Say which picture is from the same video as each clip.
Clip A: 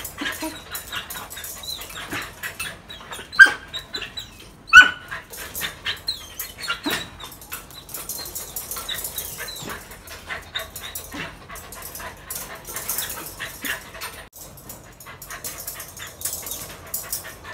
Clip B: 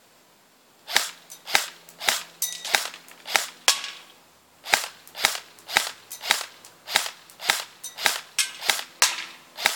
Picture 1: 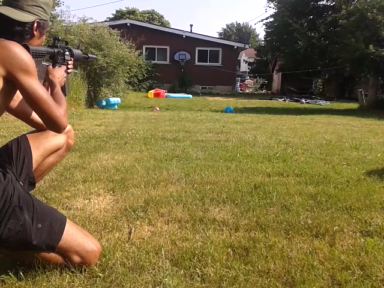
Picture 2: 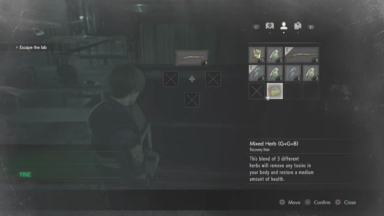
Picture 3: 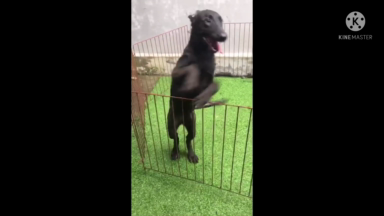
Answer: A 3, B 1